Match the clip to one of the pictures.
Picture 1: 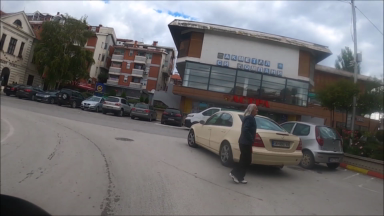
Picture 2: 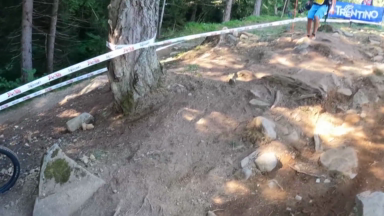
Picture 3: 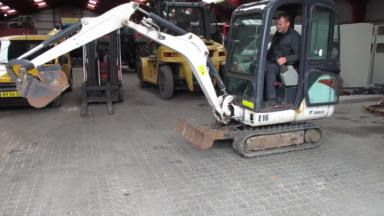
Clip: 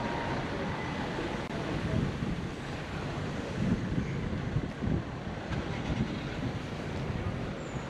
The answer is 1